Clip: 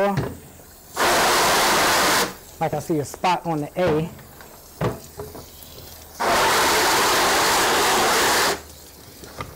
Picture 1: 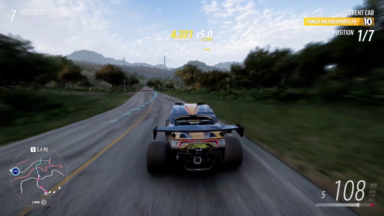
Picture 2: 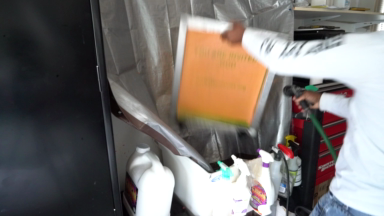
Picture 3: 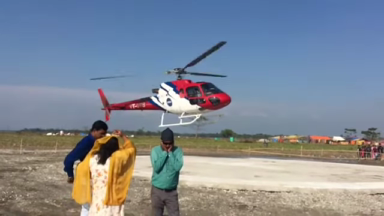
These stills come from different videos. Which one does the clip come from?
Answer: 2